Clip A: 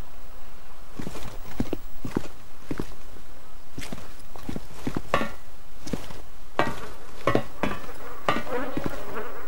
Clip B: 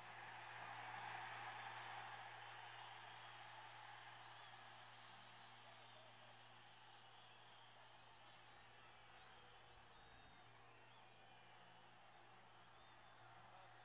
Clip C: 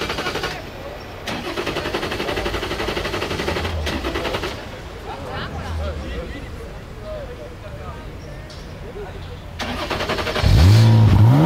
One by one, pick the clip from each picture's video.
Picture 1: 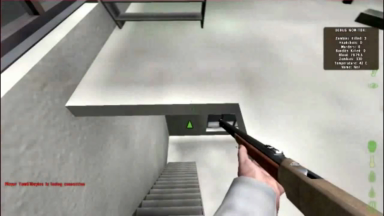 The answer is A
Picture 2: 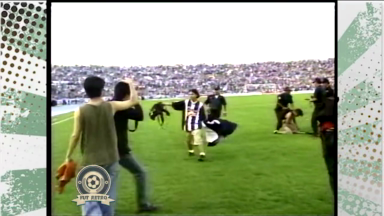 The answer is B